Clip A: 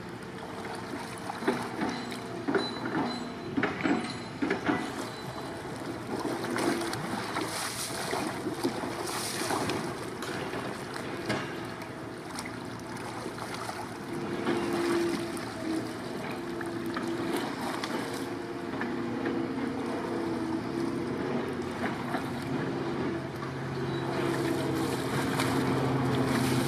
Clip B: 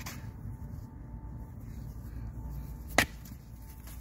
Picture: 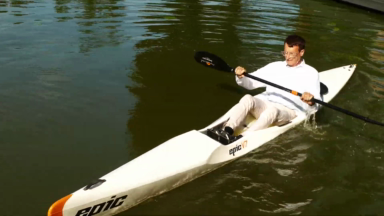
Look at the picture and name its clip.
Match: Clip A